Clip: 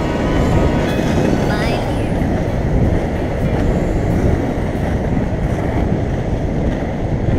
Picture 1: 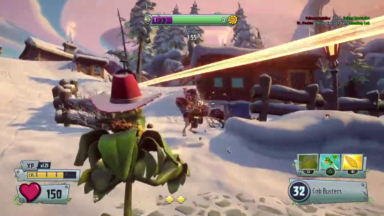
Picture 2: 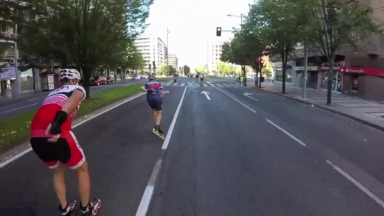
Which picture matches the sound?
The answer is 2